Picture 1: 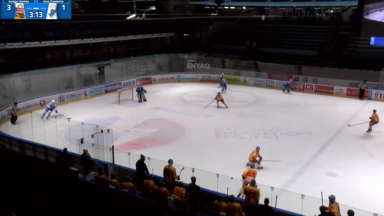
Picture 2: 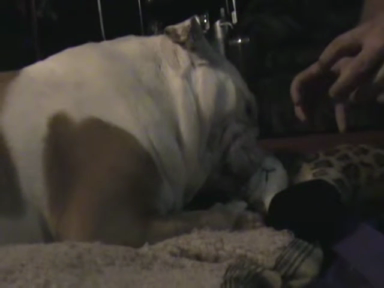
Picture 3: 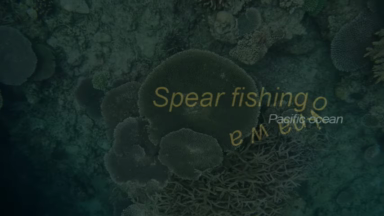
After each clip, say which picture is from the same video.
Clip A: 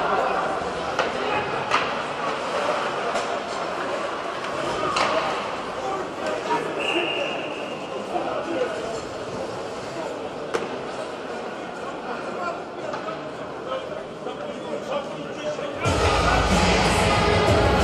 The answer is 1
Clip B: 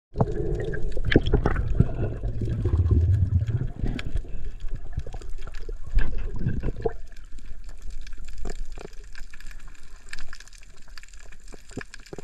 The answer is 3